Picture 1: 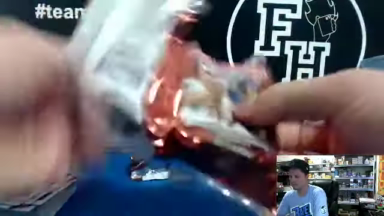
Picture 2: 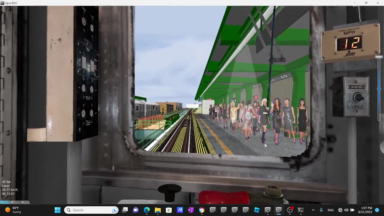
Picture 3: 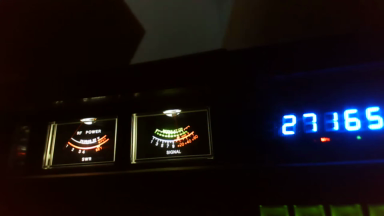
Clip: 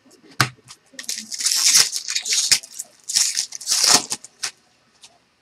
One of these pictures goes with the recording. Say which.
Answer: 1